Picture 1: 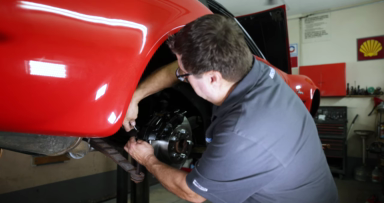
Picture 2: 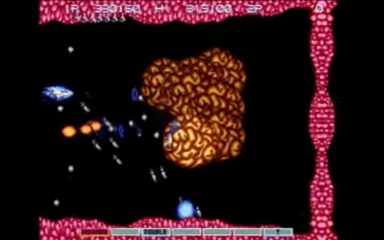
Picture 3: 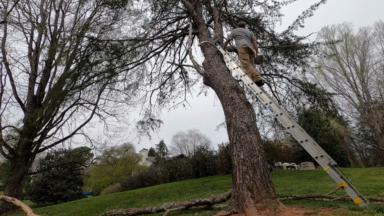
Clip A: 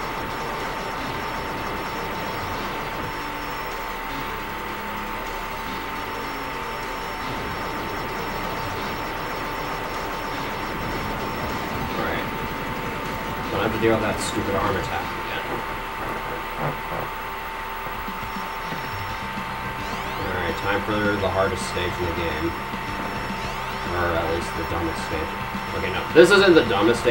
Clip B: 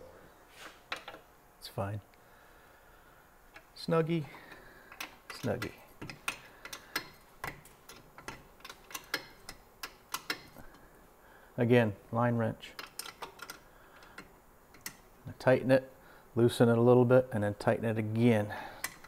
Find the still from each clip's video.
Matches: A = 2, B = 1